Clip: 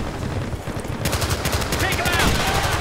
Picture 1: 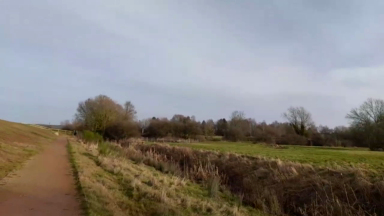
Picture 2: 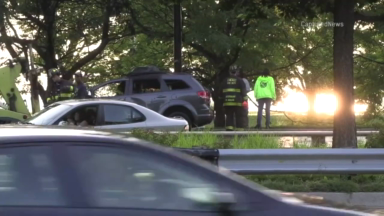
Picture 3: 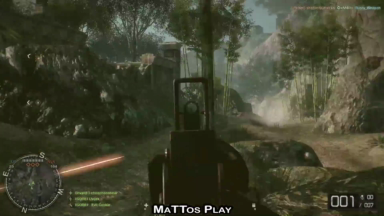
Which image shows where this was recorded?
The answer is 3